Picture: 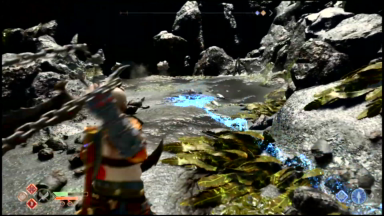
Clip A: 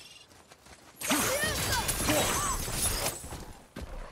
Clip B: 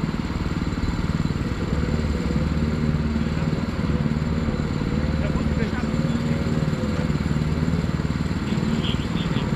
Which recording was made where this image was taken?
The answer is A